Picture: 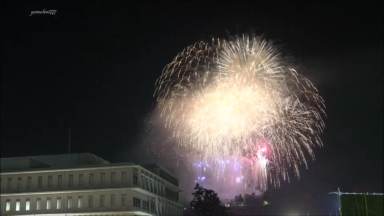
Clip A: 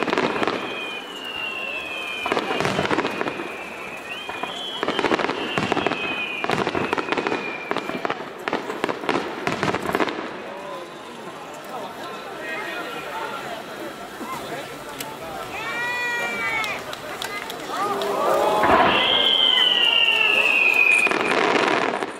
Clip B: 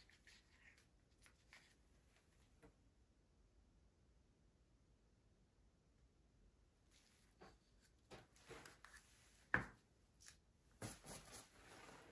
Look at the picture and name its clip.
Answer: A